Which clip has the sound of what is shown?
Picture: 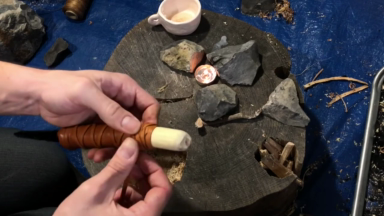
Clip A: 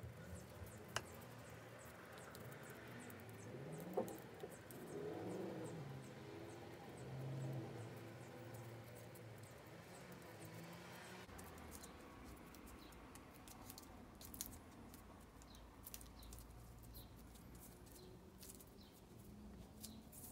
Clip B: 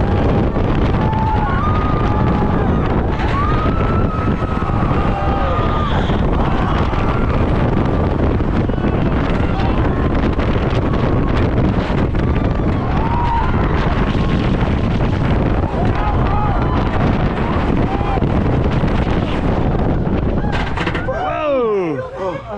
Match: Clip A